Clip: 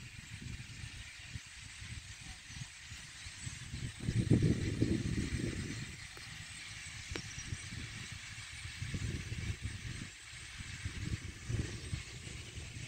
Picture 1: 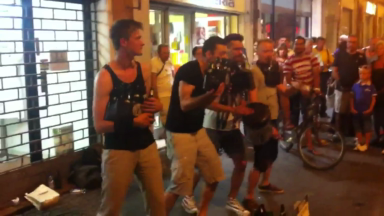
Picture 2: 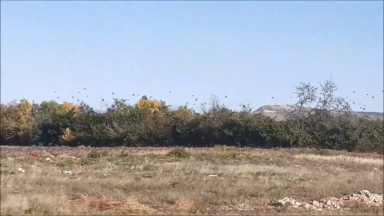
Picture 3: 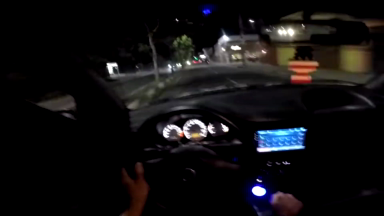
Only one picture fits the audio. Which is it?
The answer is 2